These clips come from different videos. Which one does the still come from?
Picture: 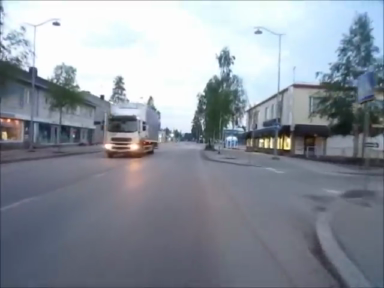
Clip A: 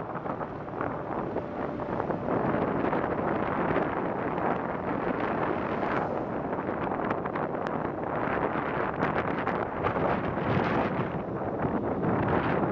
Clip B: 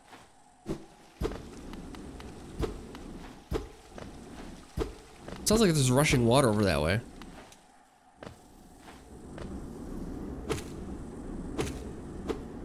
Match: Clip A